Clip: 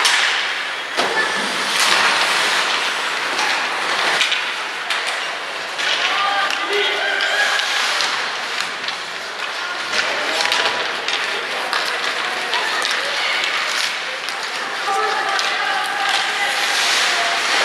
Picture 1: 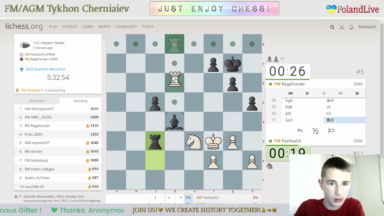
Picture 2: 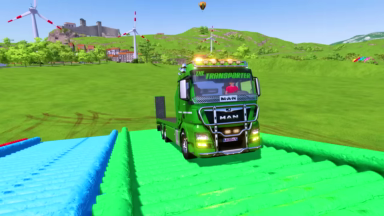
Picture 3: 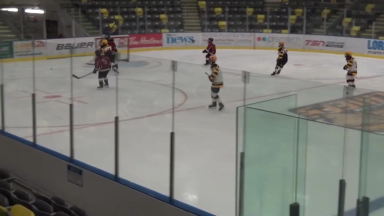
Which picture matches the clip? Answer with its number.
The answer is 3